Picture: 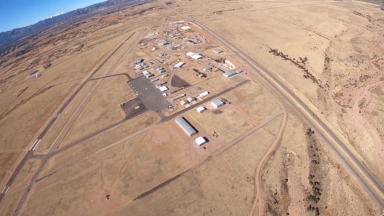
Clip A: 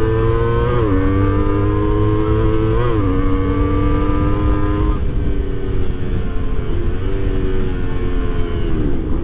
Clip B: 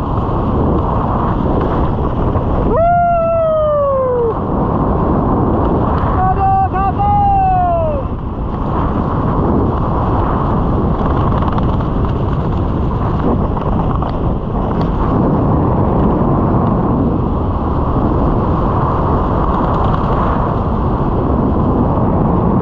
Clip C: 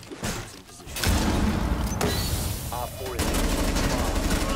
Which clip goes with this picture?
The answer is B